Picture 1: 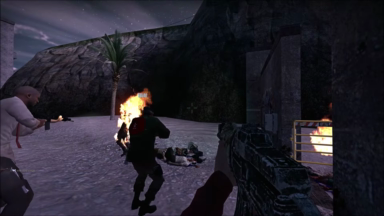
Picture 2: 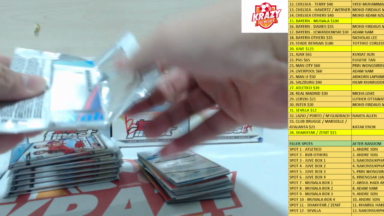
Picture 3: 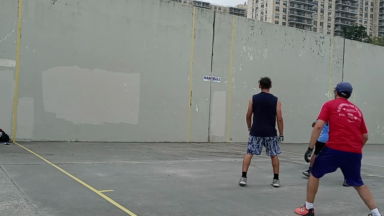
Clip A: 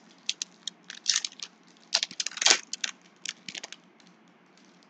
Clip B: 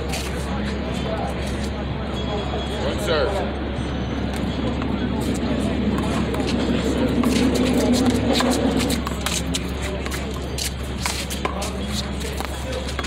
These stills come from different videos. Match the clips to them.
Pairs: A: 2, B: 3